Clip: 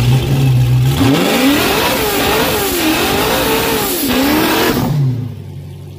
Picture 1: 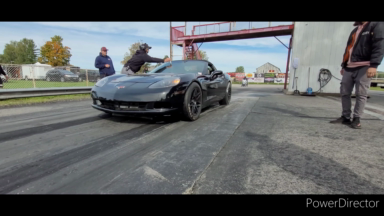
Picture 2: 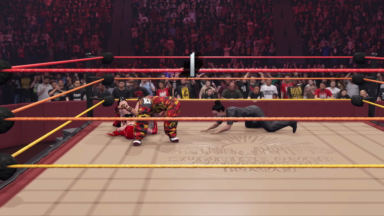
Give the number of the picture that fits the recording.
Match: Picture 1